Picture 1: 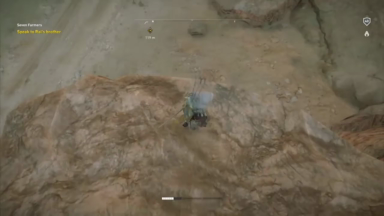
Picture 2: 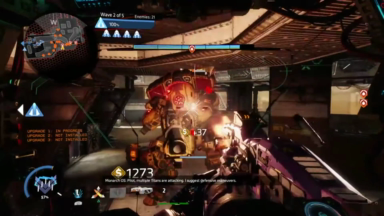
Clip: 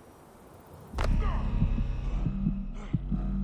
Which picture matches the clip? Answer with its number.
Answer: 1